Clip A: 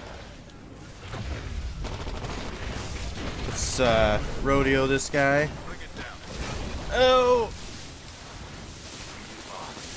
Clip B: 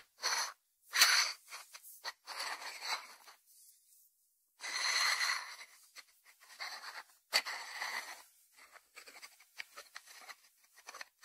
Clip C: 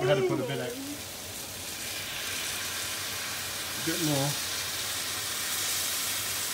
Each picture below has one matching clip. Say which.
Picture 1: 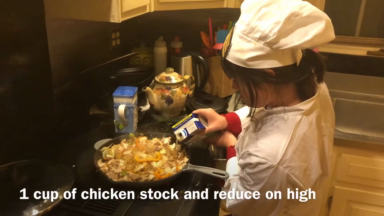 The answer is C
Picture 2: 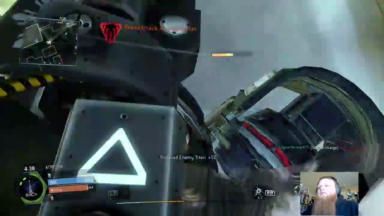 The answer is A